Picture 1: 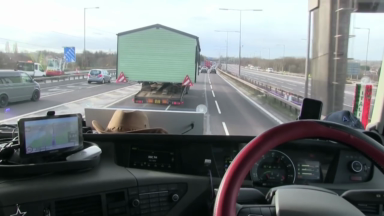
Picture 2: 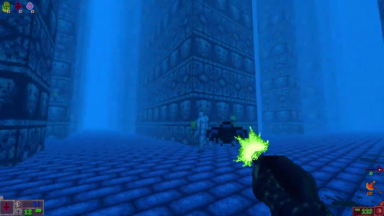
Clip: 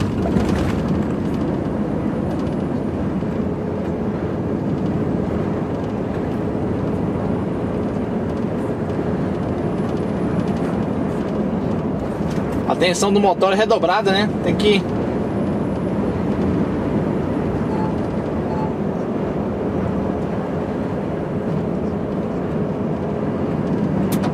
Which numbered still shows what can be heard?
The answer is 1